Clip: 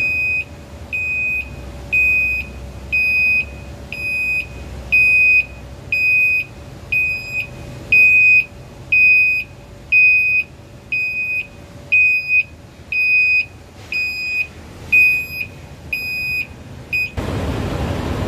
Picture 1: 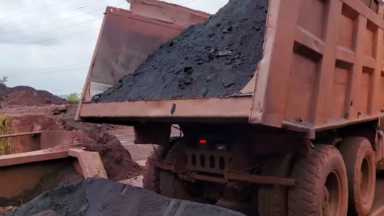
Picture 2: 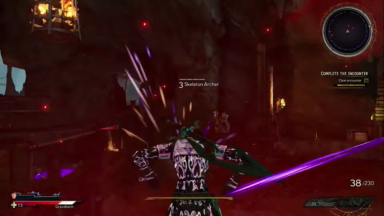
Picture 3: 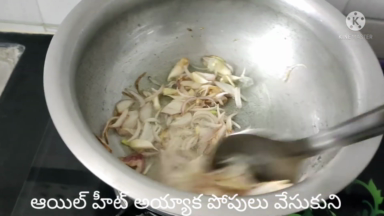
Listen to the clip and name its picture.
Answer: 1